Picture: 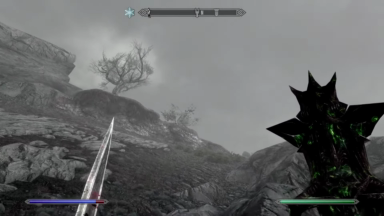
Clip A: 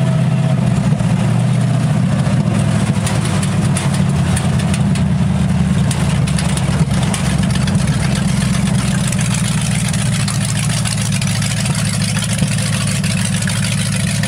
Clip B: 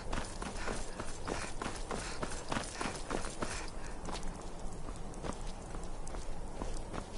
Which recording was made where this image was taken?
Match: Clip B